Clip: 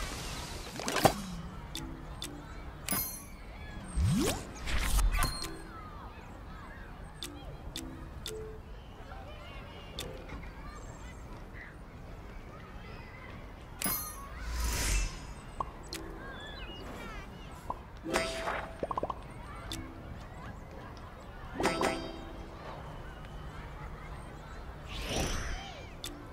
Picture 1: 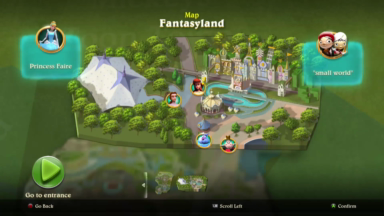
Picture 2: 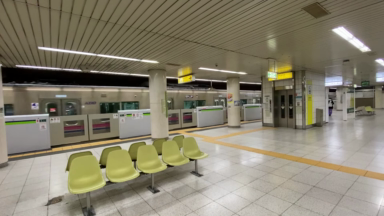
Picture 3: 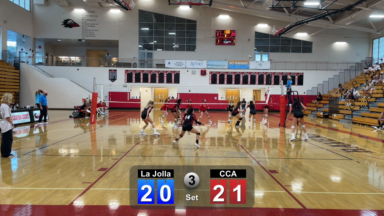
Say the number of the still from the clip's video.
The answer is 1